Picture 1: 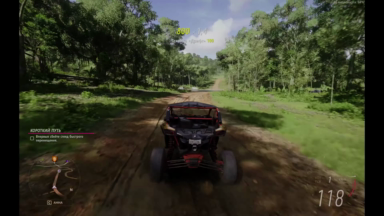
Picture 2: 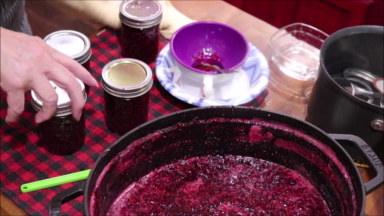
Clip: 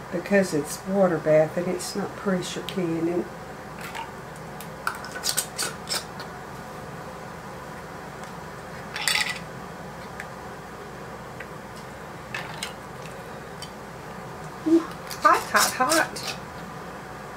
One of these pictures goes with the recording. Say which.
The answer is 2